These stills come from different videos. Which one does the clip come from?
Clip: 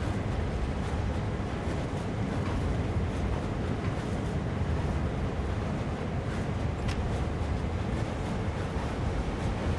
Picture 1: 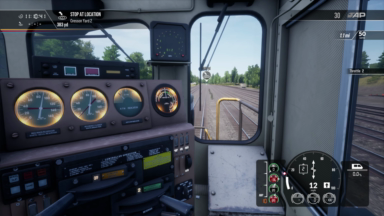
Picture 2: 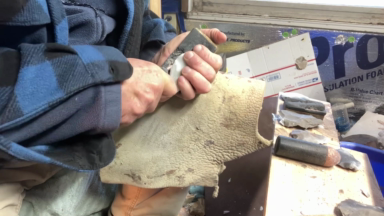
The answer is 1